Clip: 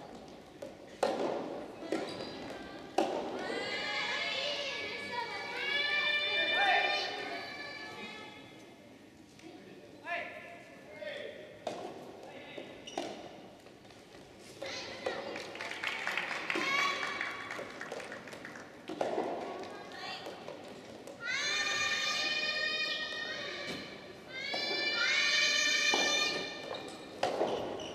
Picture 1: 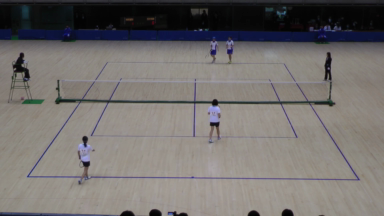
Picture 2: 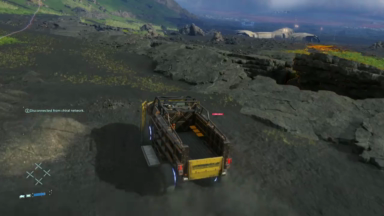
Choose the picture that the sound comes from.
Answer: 1